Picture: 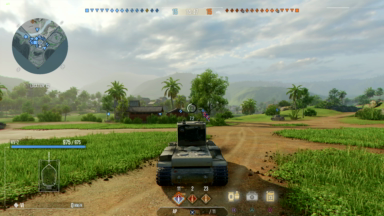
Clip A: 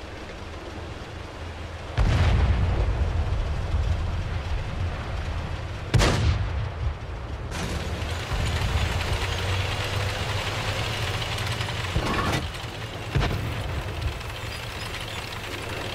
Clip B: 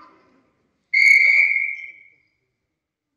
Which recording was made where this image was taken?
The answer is A